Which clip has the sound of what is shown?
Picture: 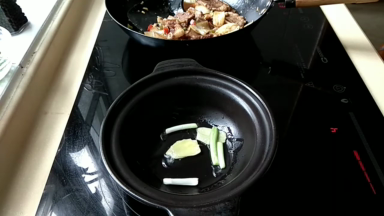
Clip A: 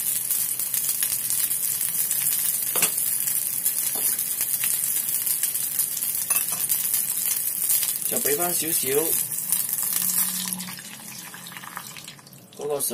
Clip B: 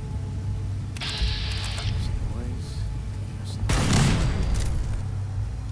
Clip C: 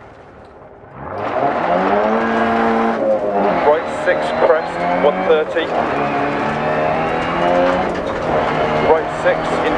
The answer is A